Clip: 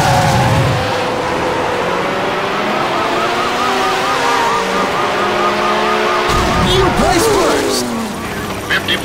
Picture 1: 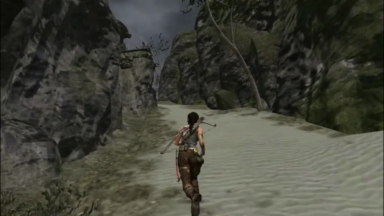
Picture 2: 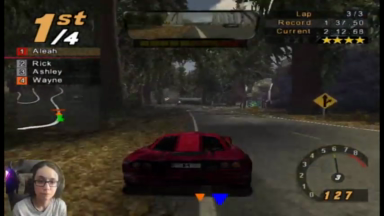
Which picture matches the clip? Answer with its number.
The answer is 2